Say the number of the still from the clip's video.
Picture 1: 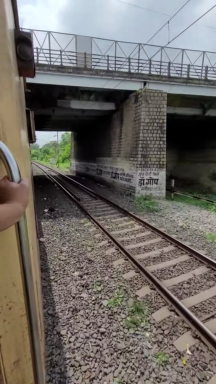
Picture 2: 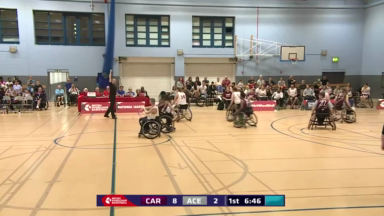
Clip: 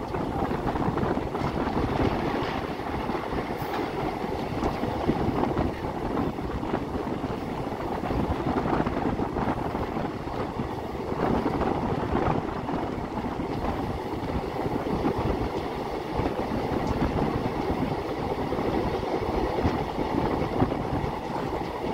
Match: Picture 1